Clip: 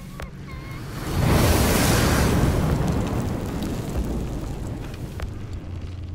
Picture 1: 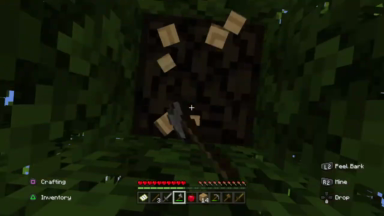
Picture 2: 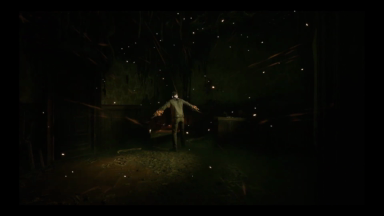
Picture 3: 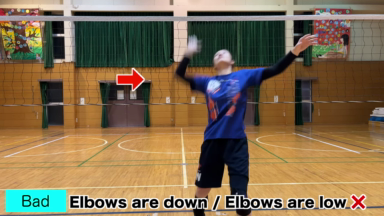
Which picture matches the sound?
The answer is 2